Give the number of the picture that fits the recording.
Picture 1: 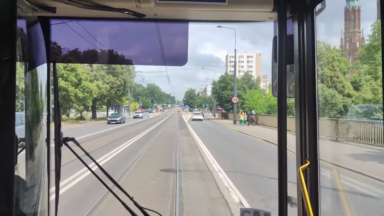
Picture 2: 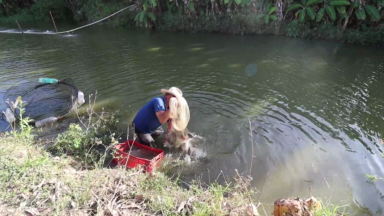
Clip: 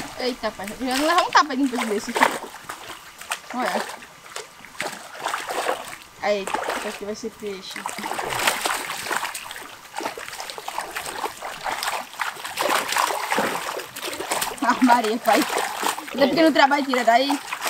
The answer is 2